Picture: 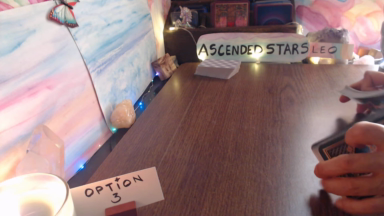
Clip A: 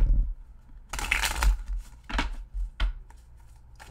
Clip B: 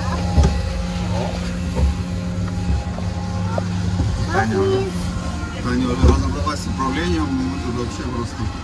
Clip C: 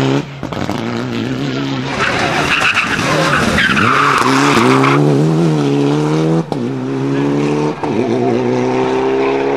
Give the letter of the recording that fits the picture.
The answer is A